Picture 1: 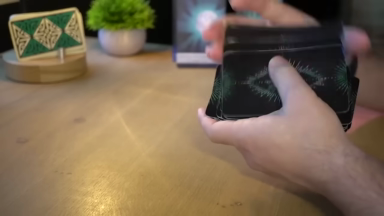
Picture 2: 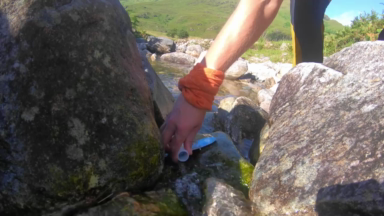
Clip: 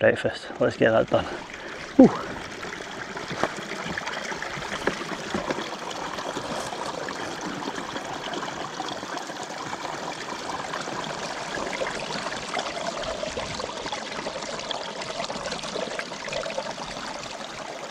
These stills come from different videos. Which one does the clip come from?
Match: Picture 2